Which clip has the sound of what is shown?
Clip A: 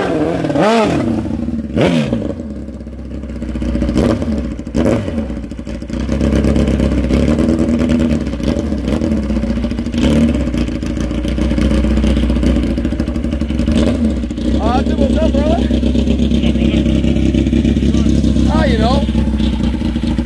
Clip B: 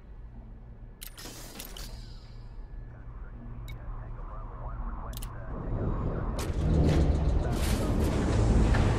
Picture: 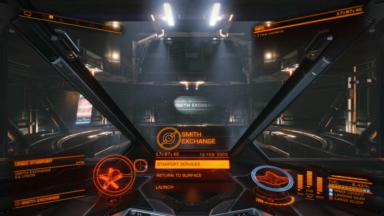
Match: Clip B